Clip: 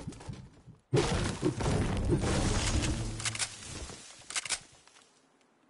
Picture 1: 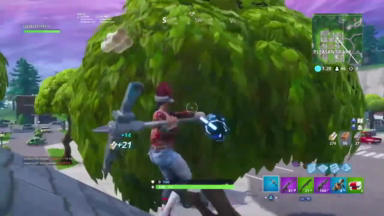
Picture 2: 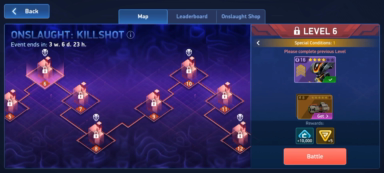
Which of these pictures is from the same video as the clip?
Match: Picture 1